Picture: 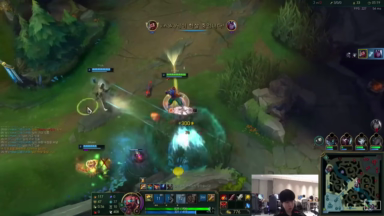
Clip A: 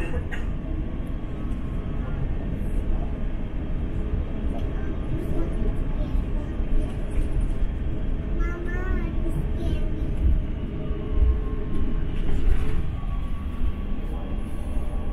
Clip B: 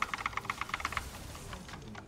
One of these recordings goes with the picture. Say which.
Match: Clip B